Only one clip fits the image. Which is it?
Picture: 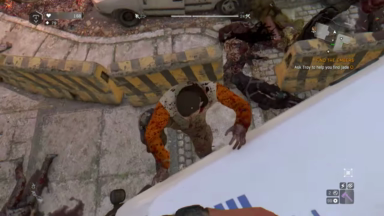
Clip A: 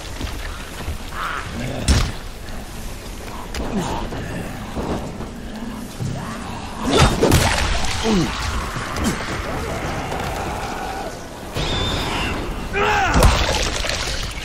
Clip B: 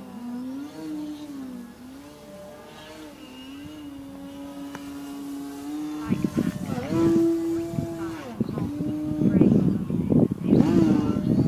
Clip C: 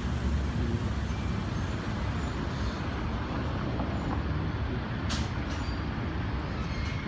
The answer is A